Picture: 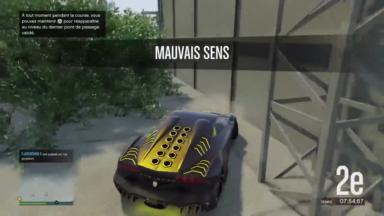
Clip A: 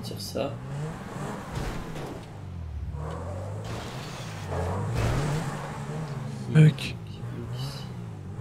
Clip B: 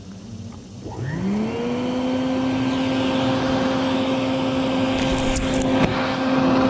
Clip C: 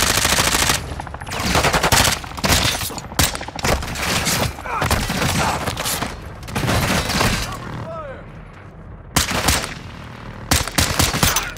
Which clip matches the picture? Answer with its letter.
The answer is A